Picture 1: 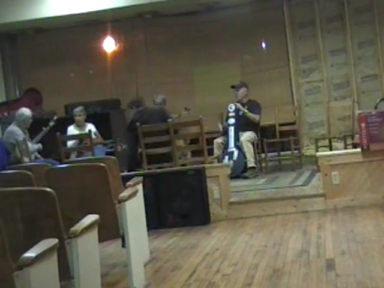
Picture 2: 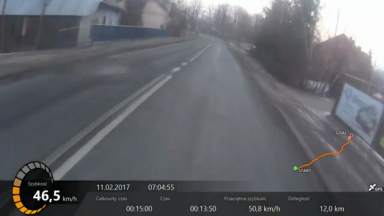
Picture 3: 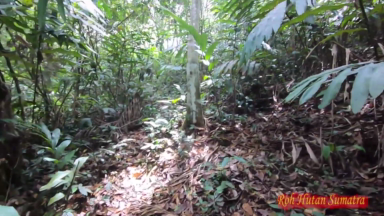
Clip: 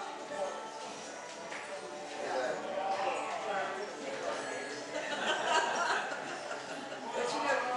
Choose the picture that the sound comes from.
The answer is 1